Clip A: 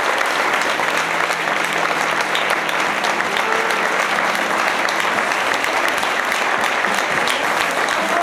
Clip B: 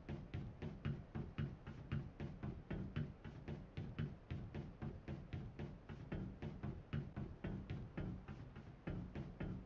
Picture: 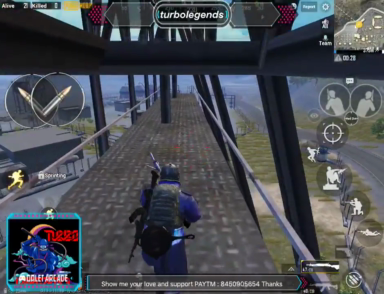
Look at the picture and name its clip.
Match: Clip B